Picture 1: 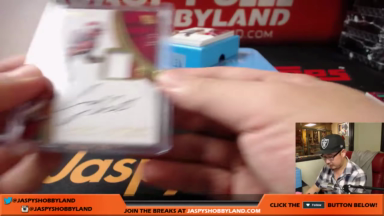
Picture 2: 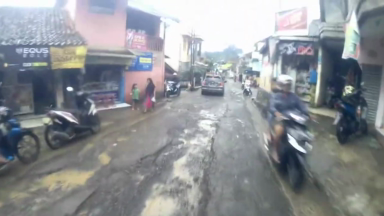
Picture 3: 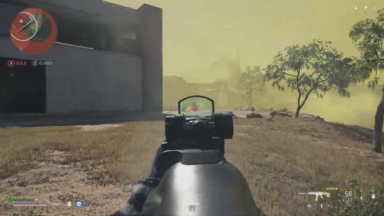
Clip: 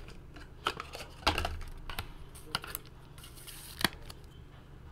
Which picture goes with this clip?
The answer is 1